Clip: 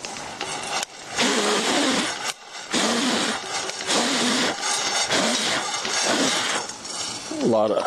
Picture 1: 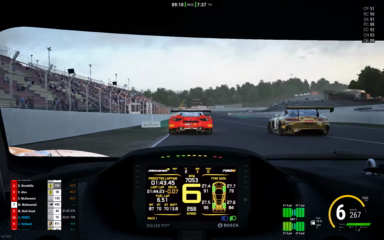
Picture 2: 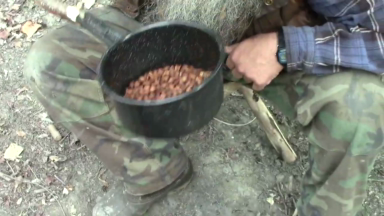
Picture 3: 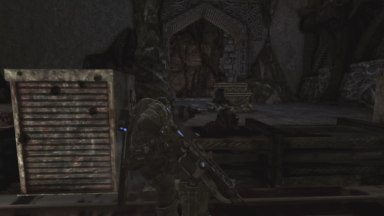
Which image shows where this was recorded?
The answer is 2